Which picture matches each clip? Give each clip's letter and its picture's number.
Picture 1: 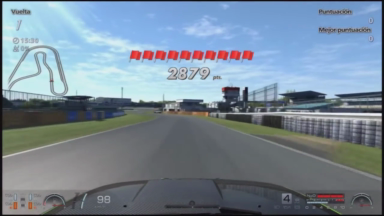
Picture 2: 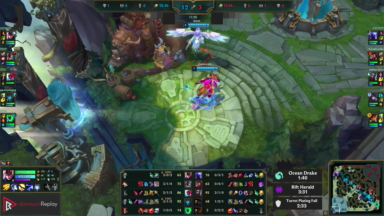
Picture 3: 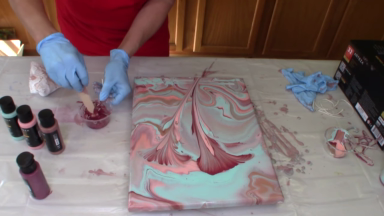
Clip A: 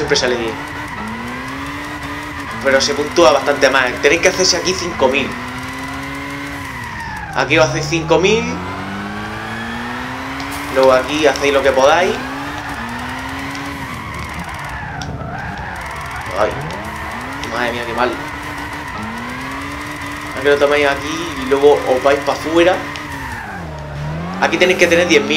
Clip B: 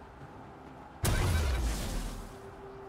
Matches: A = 1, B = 2